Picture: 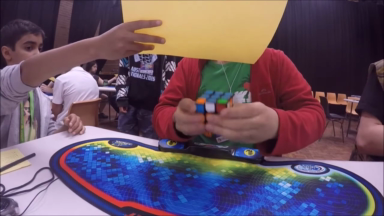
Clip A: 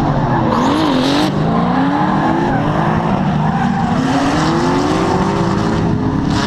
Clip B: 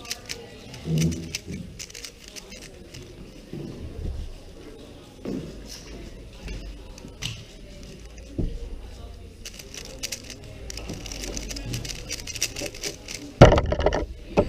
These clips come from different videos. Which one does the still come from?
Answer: B